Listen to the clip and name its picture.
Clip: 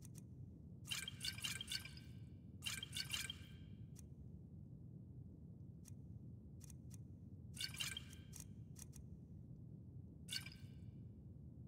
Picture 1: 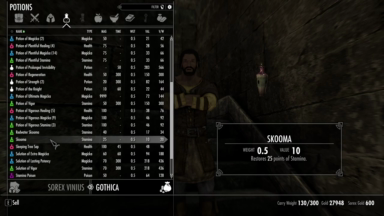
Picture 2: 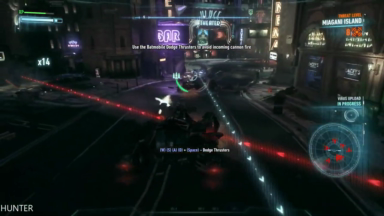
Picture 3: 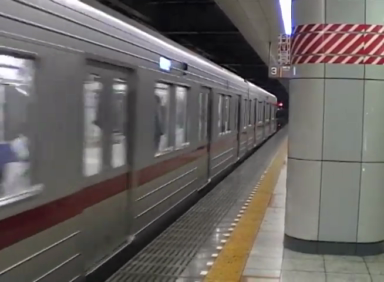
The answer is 1